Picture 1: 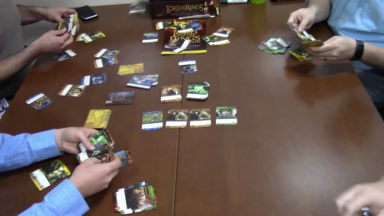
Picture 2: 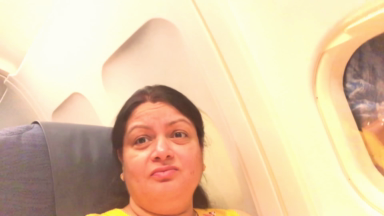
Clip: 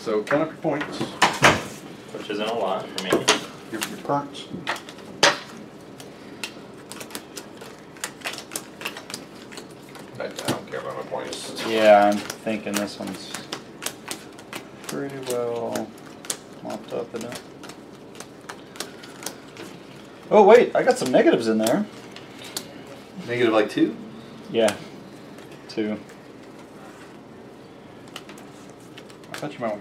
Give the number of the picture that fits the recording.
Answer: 1